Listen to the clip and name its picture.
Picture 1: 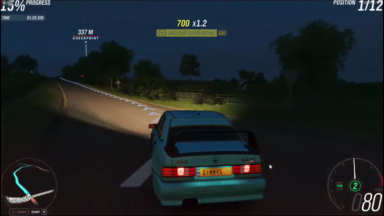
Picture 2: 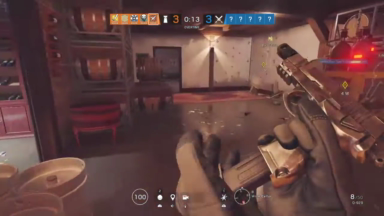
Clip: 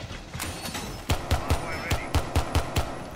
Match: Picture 2